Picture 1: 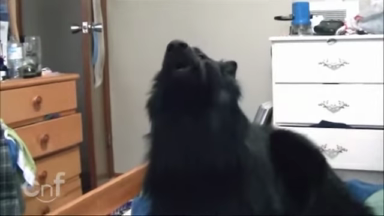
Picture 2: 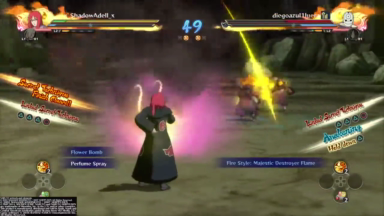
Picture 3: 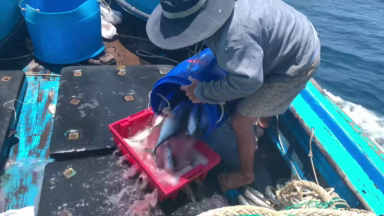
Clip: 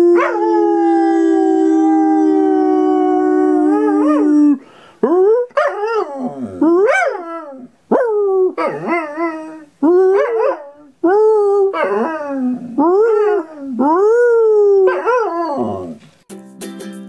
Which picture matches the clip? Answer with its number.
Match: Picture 1